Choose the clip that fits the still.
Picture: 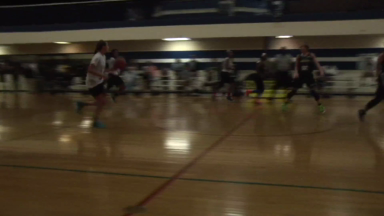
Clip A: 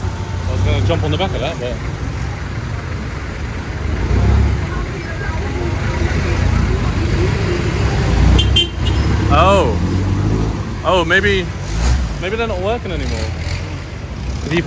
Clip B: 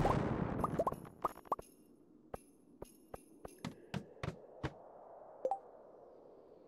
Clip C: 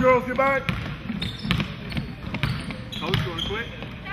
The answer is C